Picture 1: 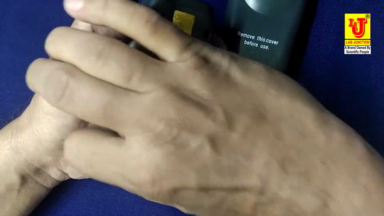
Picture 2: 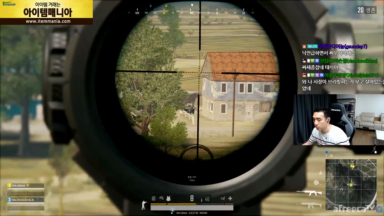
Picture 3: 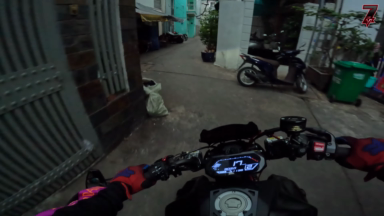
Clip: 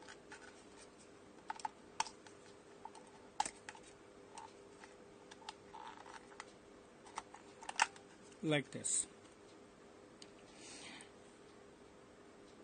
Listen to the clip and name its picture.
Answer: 1